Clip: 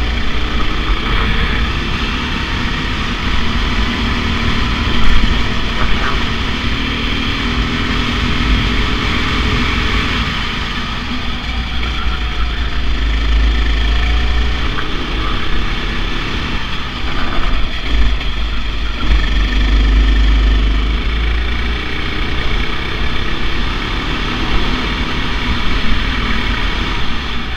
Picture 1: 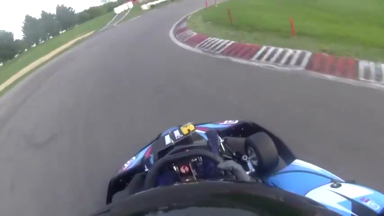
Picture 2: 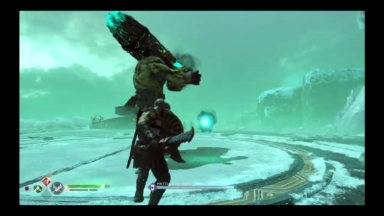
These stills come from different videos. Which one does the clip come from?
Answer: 1